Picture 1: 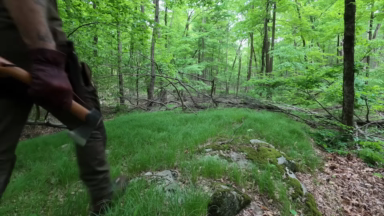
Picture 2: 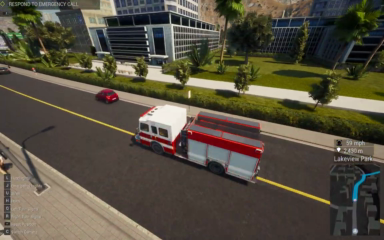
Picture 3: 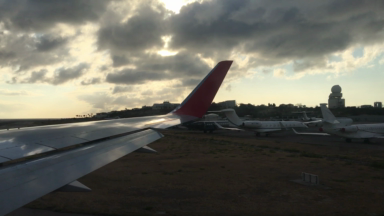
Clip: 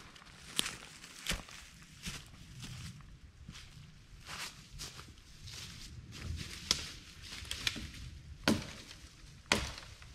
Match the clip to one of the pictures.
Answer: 1